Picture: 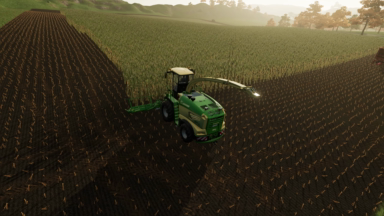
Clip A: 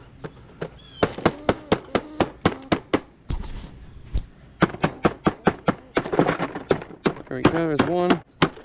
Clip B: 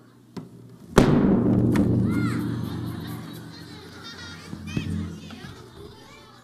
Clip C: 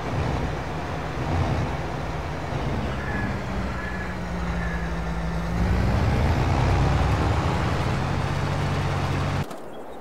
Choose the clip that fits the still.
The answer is C